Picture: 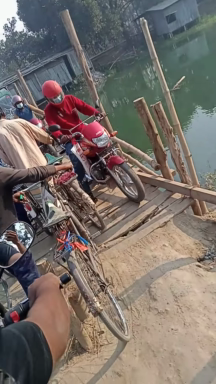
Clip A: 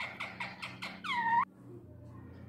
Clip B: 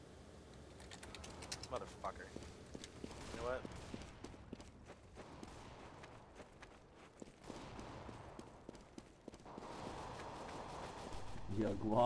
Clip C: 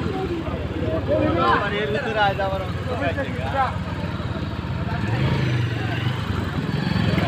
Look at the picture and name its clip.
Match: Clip C